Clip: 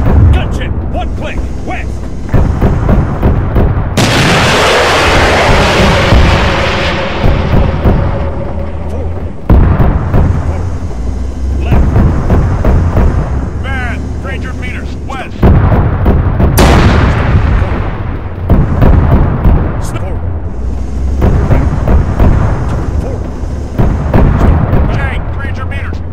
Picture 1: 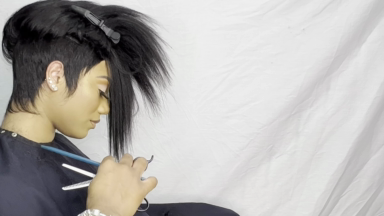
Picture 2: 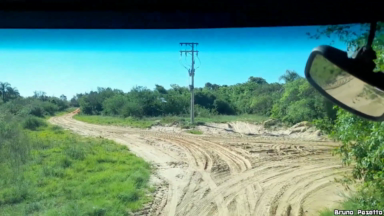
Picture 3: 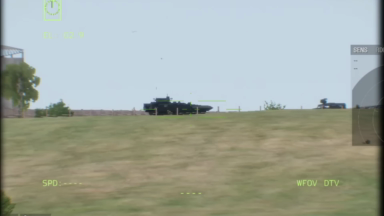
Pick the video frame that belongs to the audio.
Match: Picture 3